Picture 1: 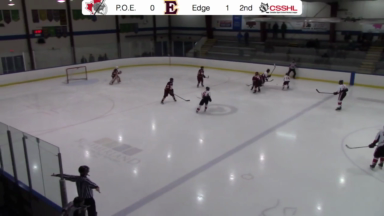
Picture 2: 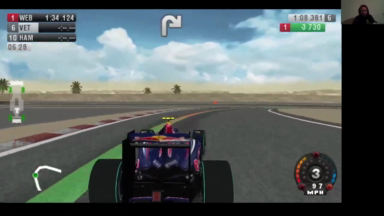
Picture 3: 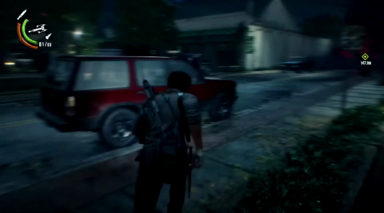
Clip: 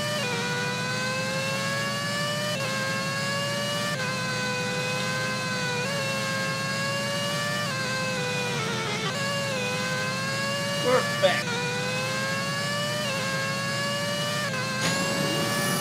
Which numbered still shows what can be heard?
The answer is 2